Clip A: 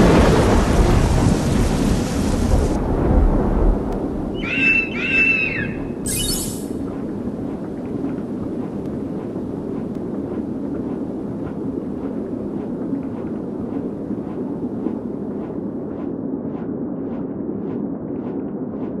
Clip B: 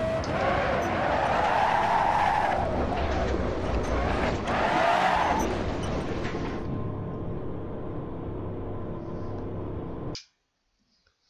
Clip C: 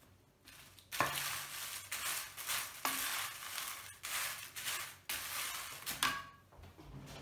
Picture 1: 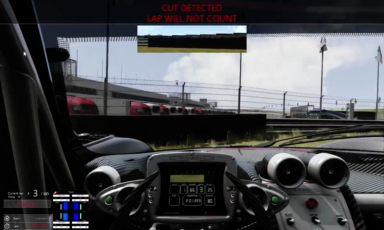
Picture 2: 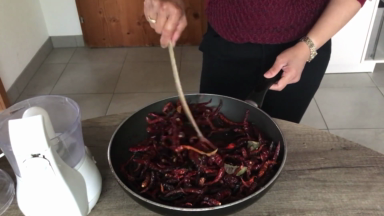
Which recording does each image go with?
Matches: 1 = B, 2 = C